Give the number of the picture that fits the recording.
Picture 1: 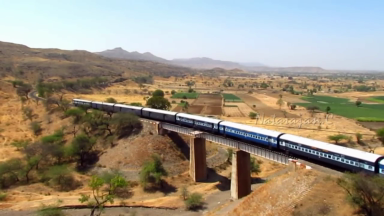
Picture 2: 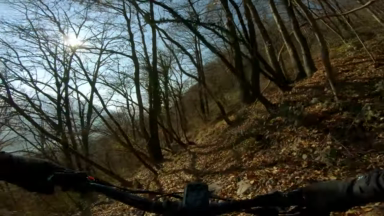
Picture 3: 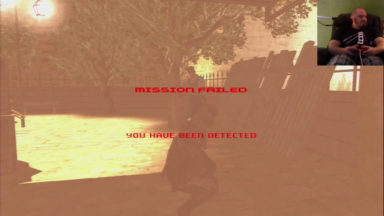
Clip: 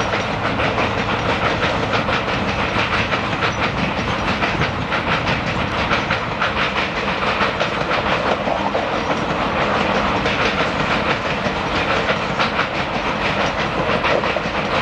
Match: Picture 1